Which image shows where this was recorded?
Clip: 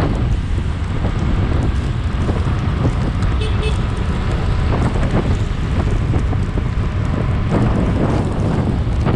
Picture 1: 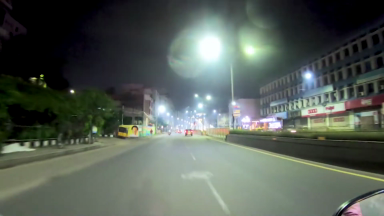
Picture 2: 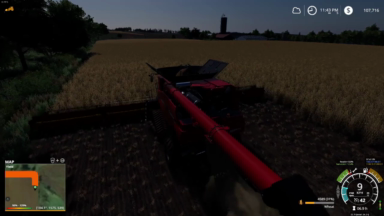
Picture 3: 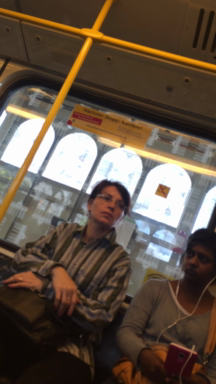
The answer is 1